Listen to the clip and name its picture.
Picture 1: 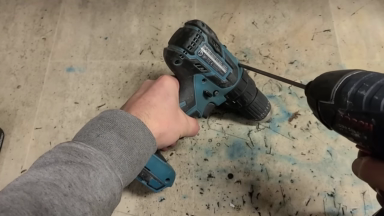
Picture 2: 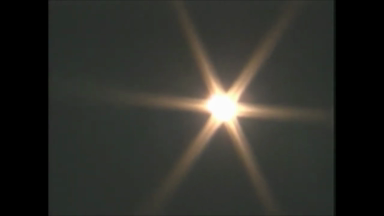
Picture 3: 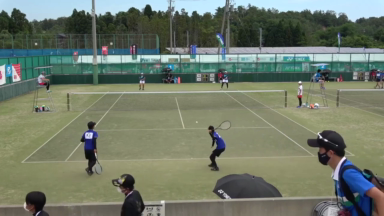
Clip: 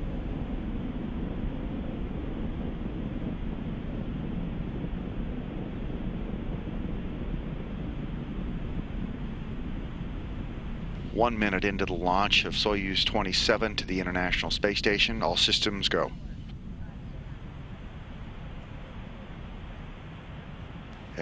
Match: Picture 2